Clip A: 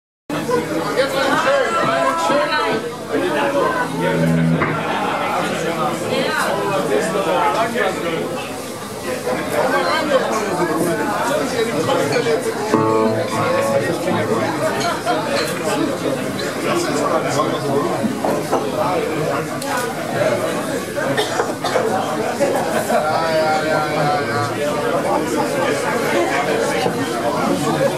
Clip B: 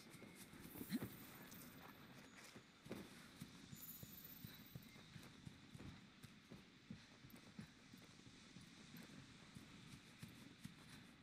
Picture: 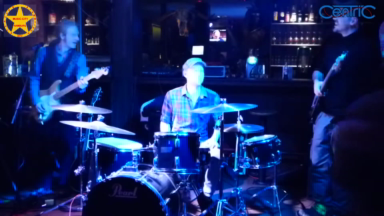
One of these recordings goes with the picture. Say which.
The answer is A